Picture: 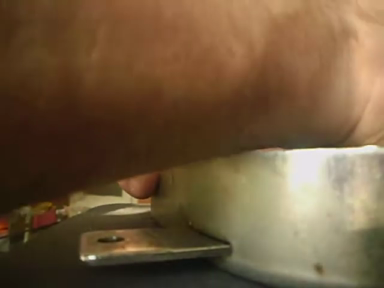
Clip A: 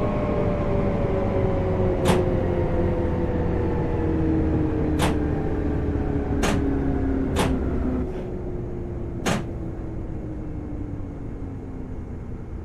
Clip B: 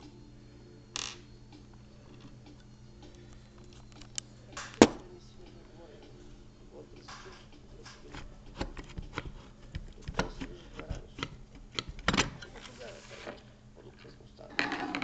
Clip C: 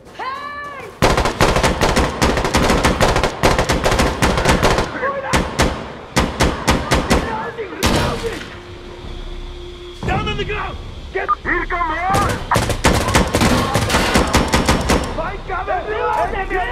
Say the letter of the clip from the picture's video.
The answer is B